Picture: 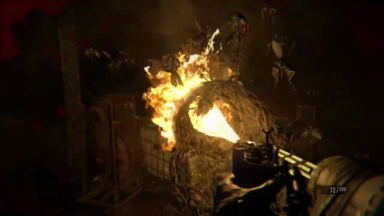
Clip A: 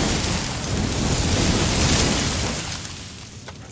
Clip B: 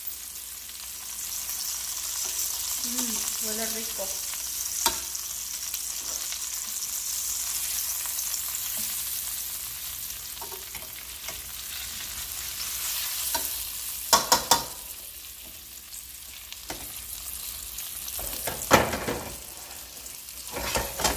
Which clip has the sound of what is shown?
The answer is A